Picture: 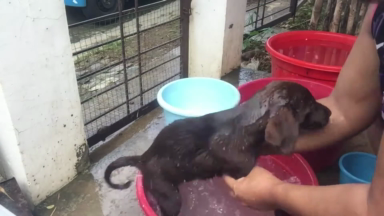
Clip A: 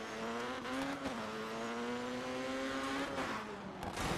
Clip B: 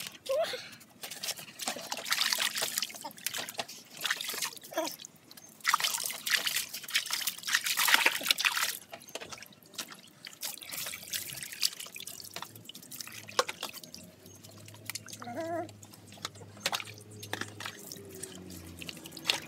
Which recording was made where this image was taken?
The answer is B